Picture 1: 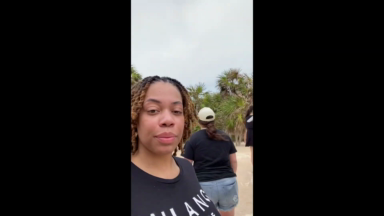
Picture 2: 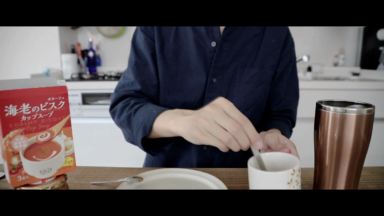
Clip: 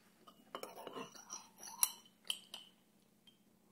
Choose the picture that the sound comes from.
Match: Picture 2